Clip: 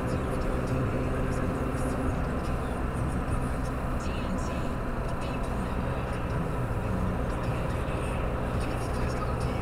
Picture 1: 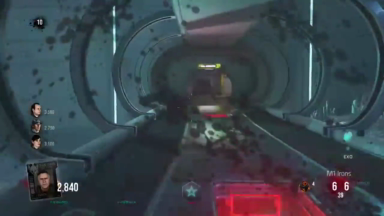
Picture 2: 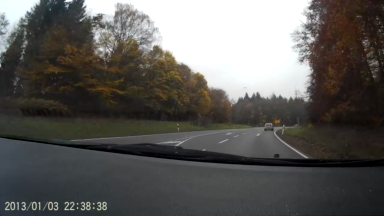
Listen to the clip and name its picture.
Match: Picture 2